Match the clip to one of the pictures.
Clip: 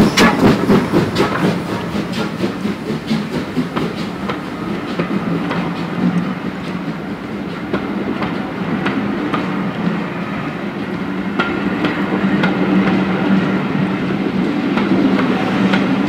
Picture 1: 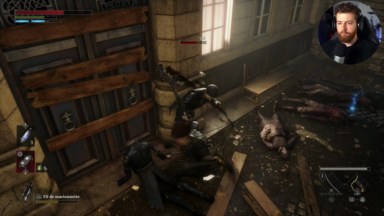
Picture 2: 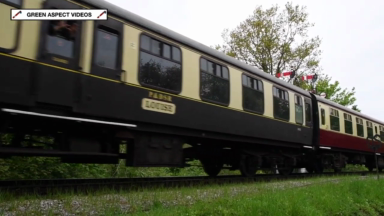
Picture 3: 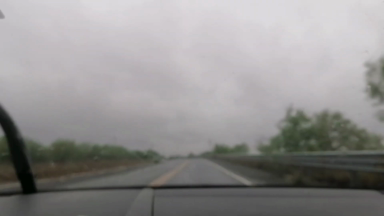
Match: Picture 2